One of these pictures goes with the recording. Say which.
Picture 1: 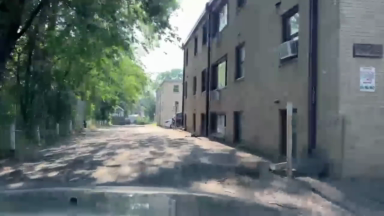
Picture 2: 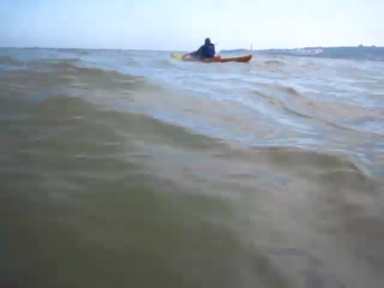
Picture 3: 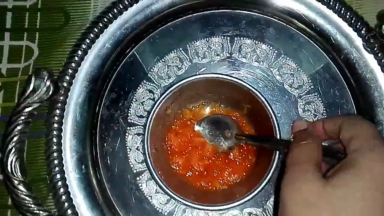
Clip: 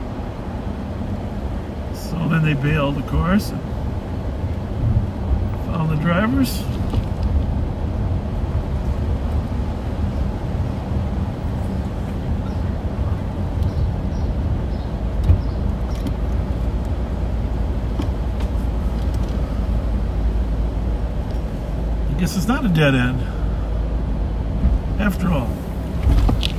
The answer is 1